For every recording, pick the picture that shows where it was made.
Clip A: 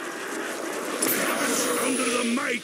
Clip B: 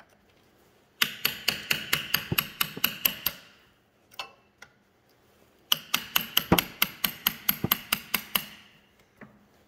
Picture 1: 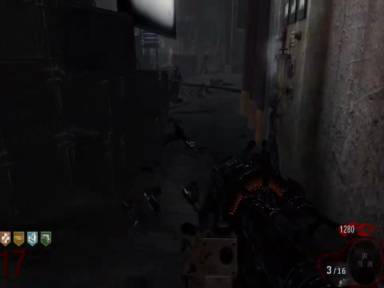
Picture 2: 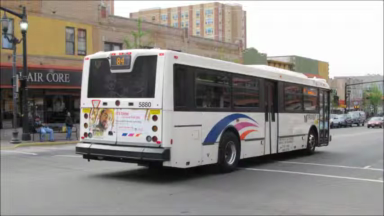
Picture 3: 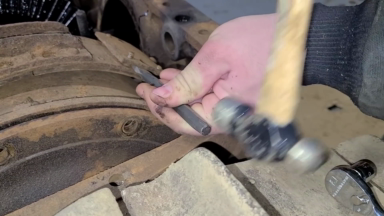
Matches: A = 1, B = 3